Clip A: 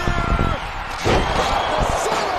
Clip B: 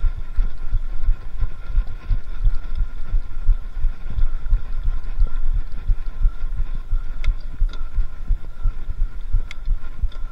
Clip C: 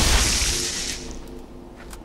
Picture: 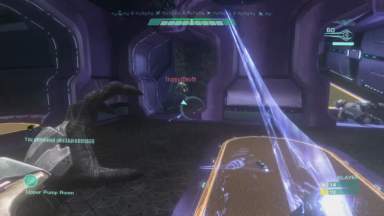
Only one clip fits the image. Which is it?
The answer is C